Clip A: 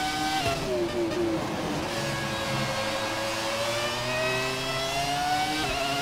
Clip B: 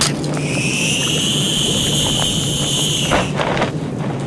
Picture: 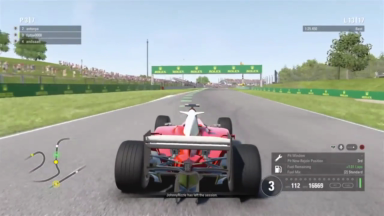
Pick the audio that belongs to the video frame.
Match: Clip A